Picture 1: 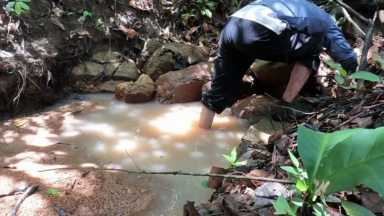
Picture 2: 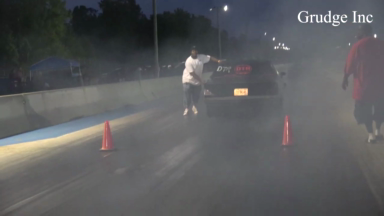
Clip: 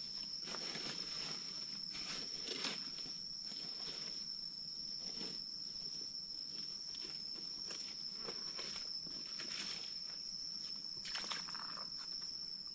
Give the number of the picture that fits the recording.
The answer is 1